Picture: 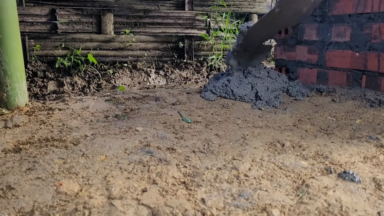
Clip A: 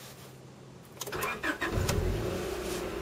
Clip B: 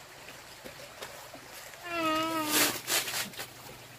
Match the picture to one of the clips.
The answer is B